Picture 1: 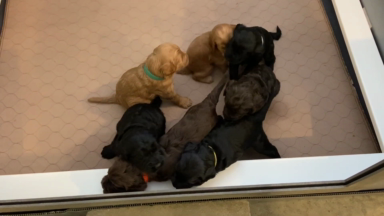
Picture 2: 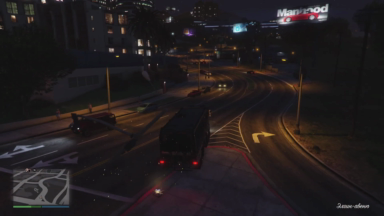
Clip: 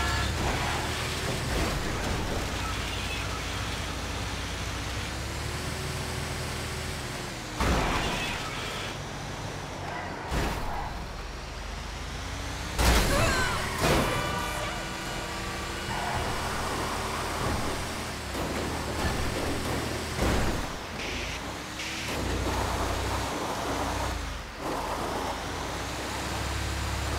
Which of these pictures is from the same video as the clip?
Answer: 2